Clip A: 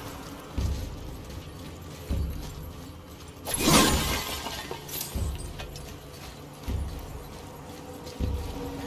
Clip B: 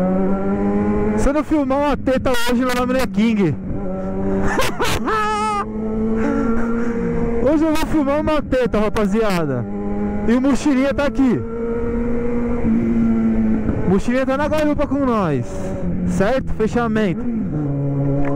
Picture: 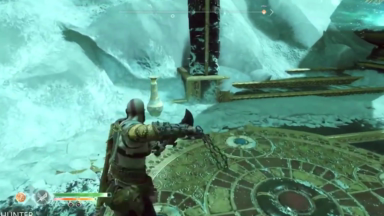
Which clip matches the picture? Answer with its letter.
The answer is A